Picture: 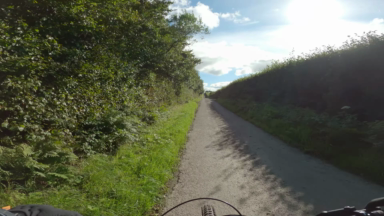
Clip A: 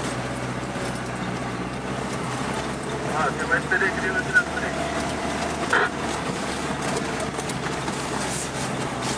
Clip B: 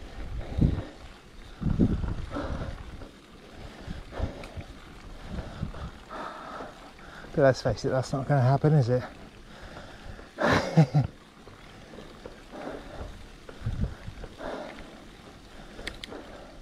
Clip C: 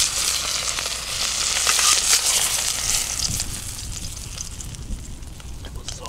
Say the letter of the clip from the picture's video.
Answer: B